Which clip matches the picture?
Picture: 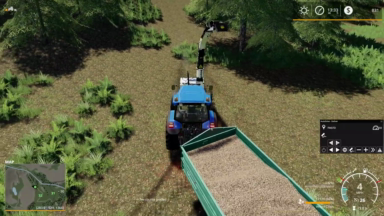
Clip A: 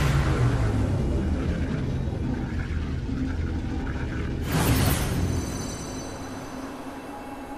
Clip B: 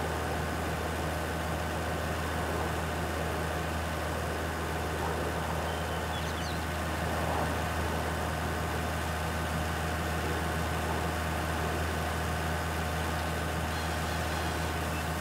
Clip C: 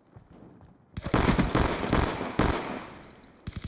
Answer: B